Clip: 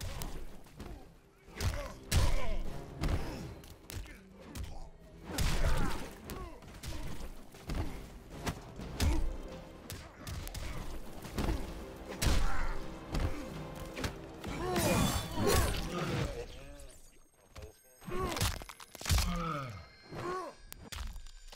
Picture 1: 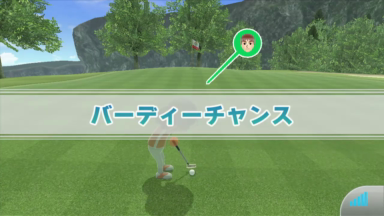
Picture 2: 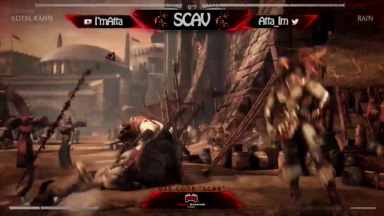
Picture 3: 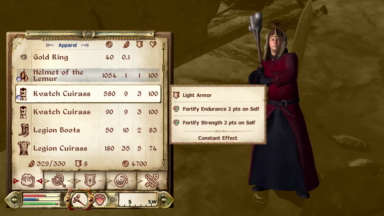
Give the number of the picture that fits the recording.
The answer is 2